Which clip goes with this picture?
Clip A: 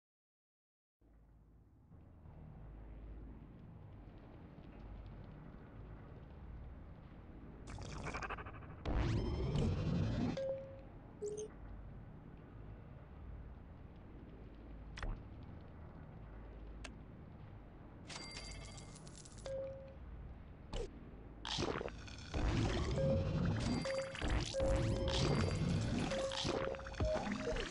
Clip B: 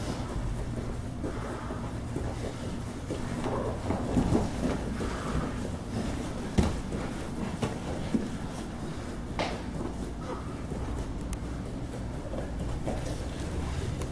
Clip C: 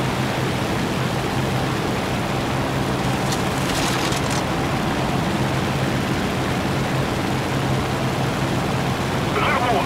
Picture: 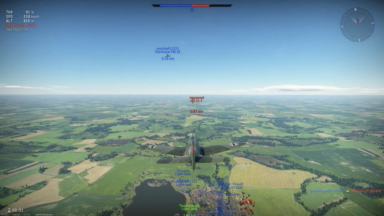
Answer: C